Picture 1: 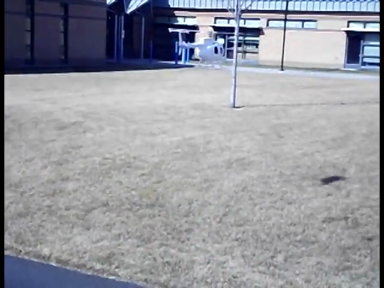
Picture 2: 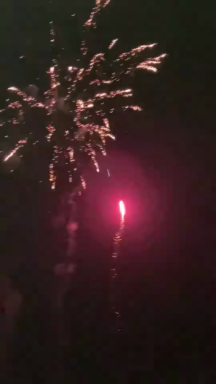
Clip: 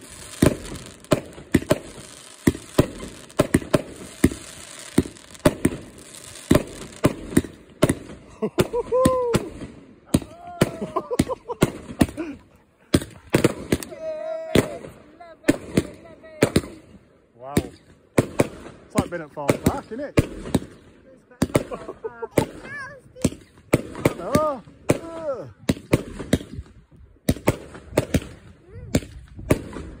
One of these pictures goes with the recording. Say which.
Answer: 2